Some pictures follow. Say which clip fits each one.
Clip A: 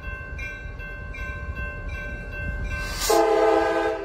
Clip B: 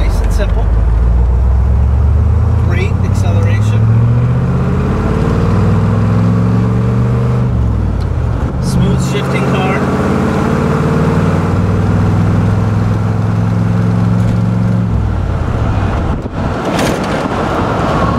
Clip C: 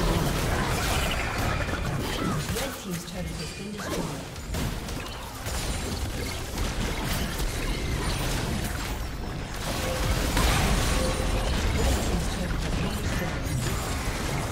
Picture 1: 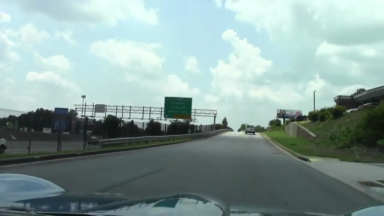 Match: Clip B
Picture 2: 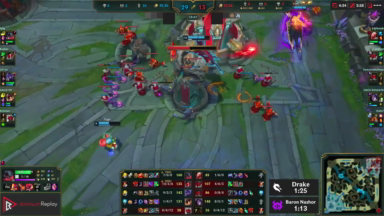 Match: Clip C